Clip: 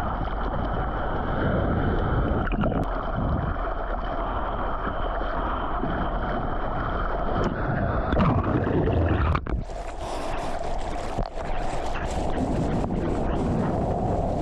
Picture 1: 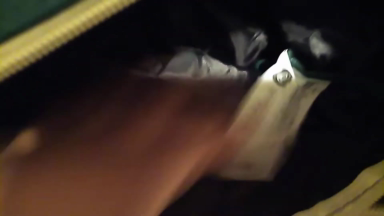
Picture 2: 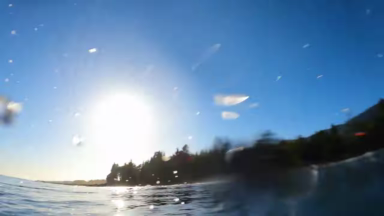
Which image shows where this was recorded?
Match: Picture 2